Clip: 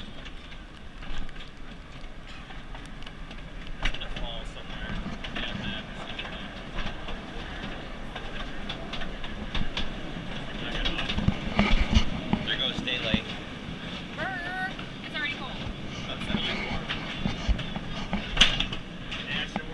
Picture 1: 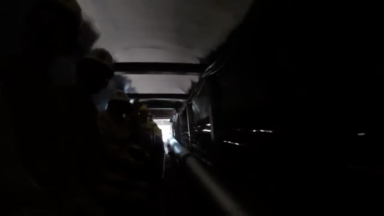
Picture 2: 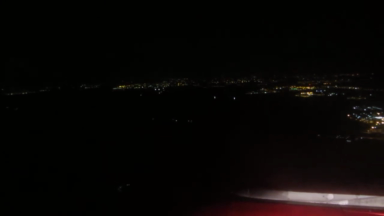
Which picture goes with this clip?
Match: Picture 1